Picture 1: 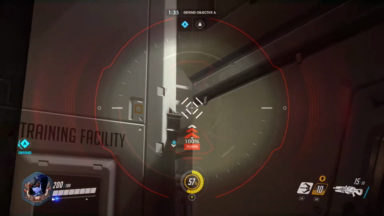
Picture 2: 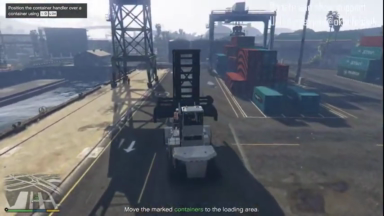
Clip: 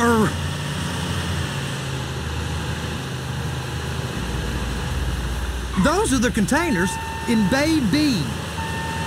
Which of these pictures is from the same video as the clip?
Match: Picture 2